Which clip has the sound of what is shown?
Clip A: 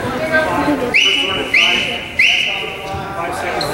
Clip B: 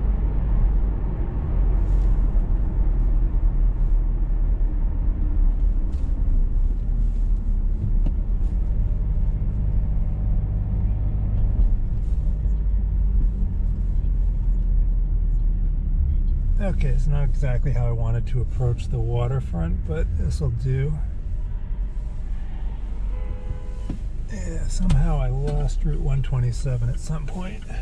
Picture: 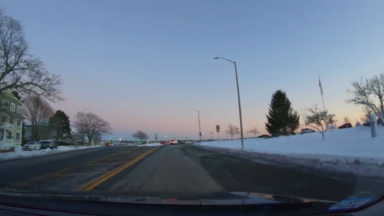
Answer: B